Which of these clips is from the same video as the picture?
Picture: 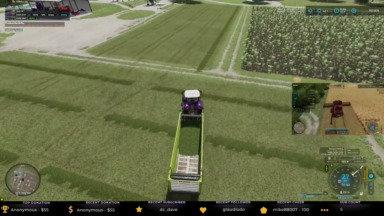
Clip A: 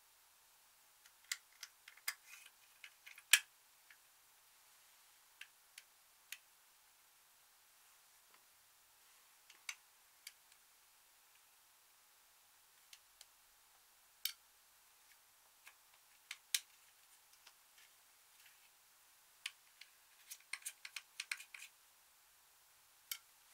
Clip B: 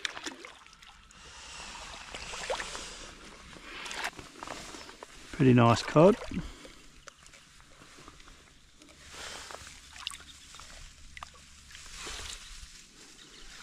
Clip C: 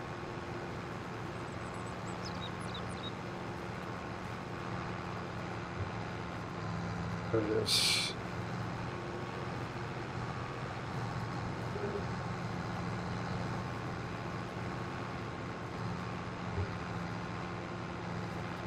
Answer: C